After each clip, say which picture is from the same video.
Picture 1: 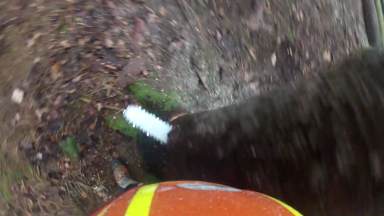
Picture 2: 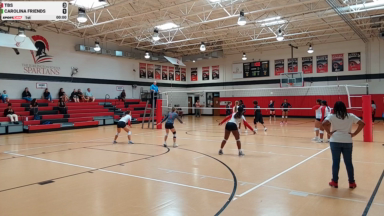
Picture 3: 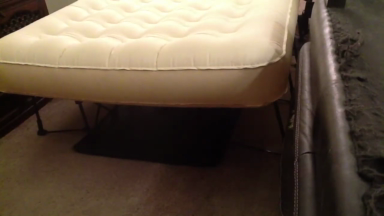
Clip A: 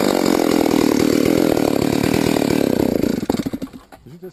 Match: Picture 1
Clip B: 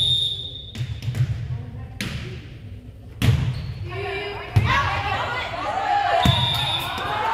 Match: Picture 2